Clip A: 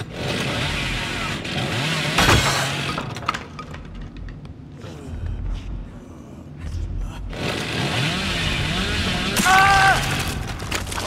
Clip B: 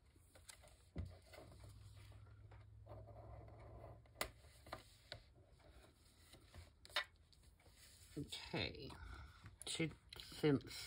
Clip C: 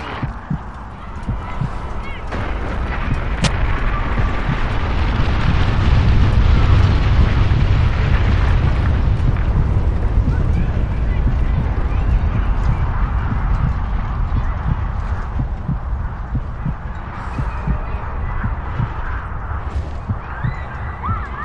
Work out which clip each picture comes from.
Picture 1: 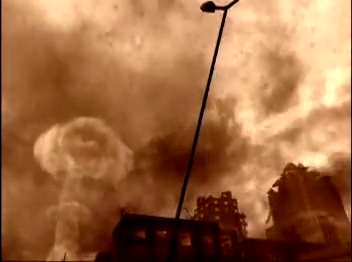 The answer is C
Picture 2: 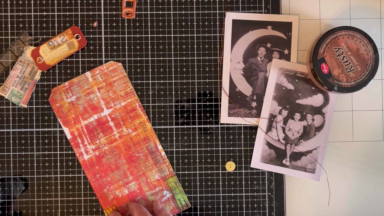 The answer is B